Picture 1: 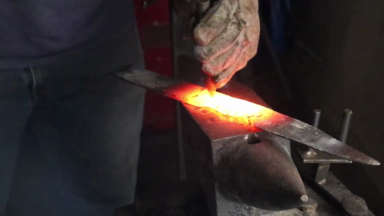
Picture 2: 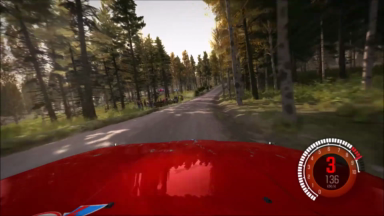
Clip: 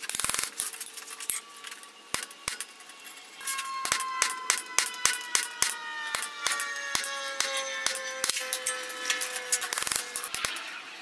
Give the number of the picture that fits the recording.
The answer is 1